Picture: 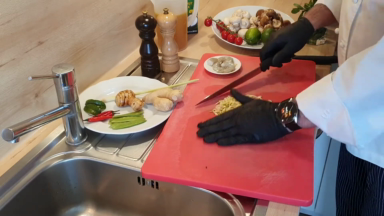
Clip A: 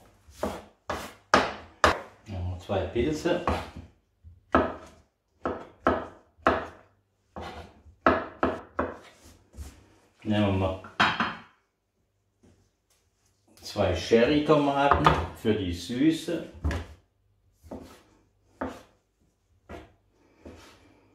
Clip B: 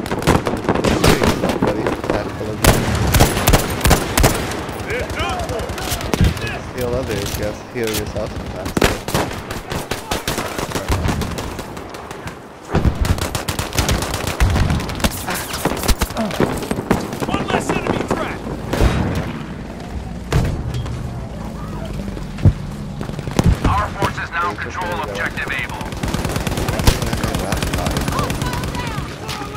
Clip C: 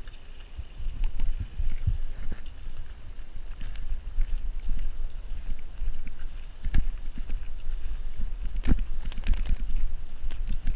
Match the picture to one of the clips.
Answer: A